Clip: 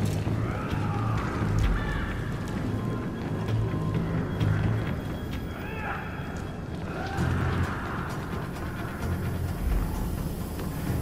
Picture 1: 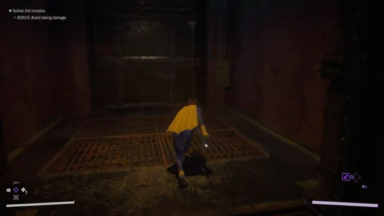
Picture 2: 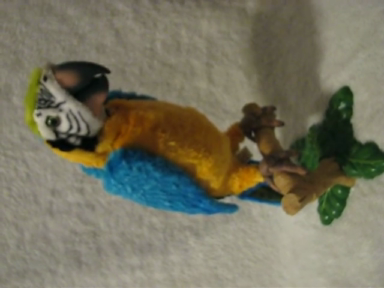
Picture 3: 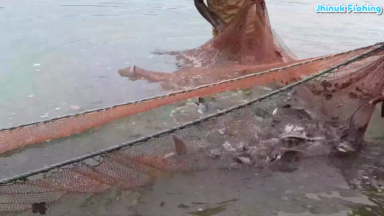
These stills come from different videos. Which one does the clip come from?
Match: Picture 1